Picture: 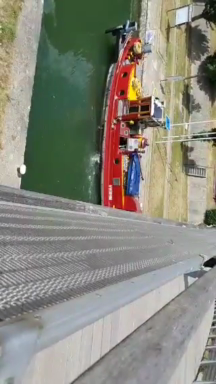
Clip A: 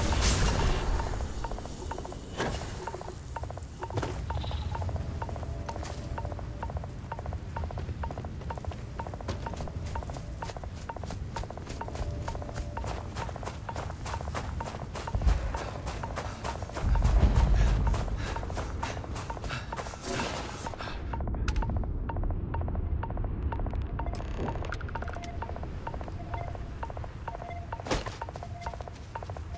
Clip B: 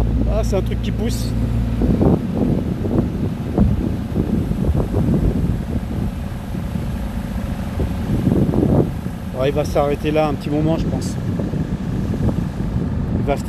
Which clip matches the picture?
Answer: B